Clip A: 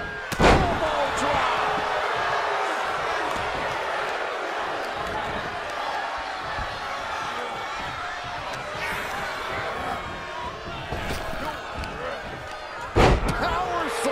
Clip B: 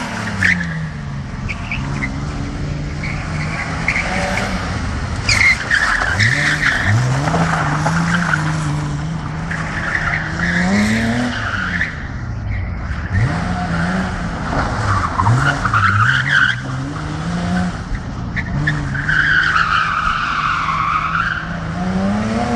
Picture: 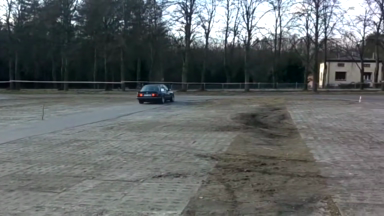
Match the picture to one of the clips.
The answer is B